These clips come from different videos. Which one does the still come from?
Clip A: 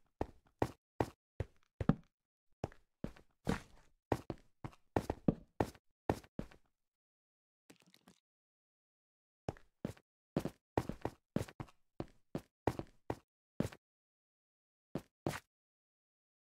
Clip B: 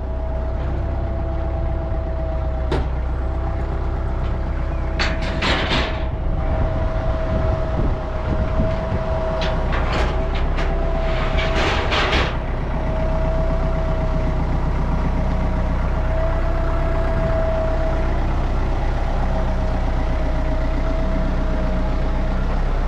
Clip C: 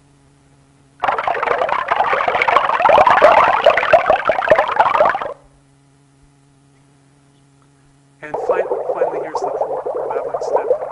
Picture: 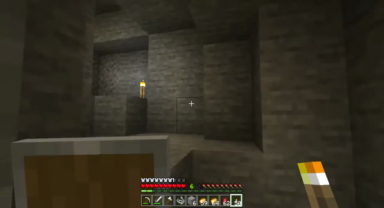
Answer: A